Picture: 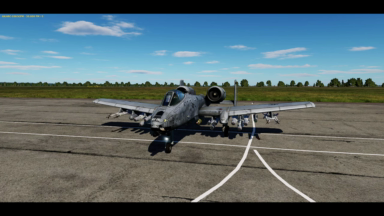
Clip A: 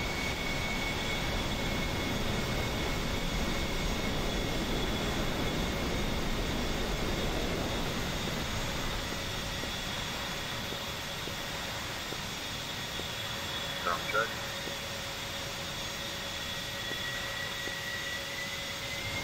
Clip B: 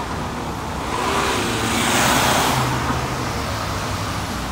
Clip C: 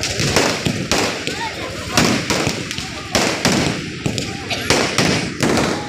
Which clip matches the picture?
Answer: A